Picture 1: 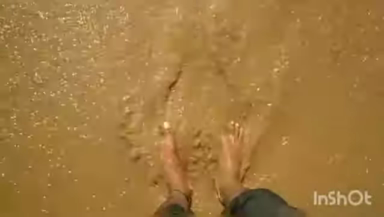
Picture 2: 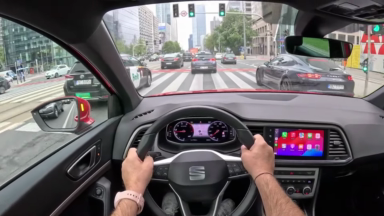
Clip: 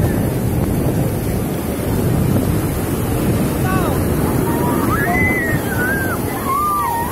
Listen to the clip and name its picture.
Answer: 1